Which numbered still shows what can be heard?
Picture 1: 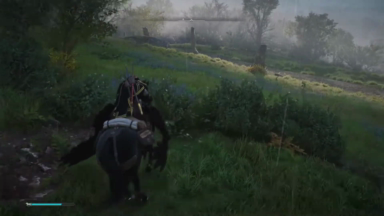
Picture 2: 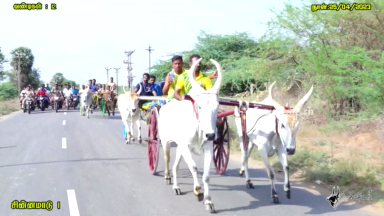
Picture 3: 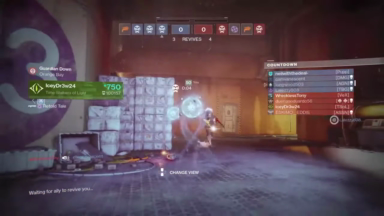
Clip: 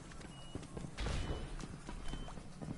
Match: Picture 3